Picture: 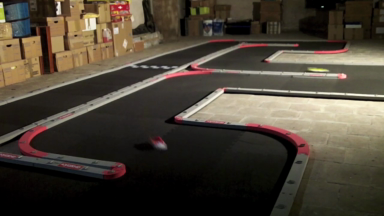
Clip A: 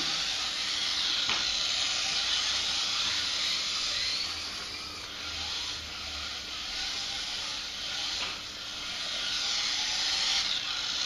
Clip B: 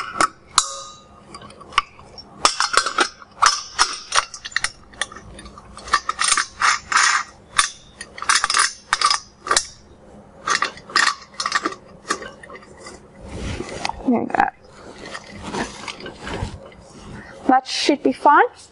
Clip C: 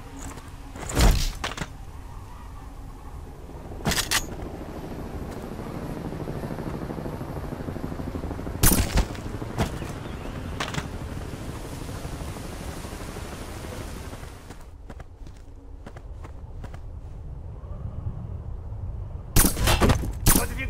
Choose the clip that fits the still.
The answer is A